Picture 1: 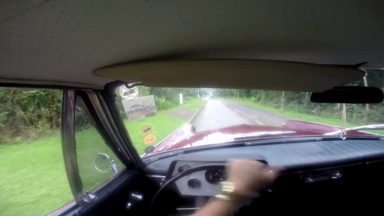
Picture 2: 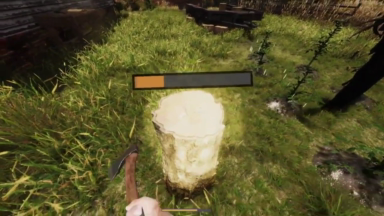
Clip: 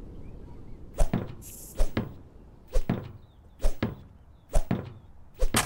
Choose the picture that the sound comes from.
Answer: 2